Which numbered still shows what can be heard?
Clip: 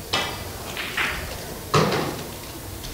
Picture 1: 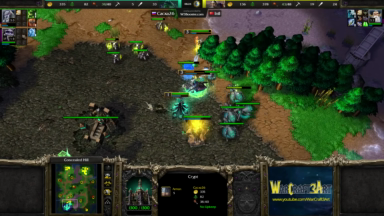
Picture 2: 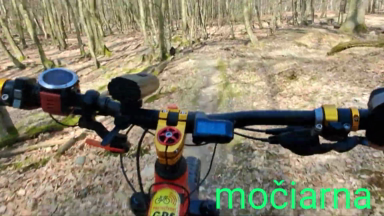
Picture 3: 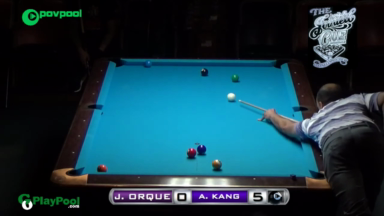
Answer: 3